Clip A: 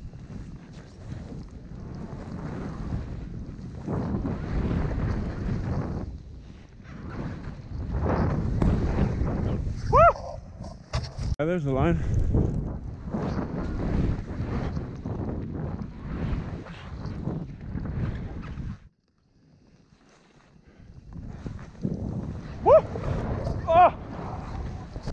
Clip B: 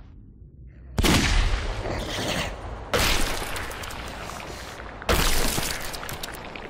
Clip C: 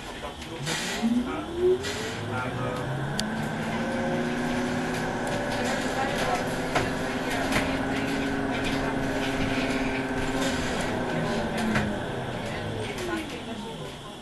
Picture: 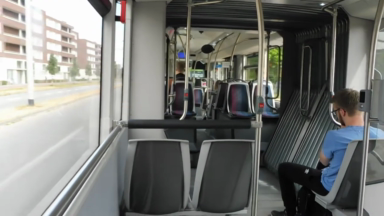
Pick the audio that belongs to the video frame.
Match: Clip C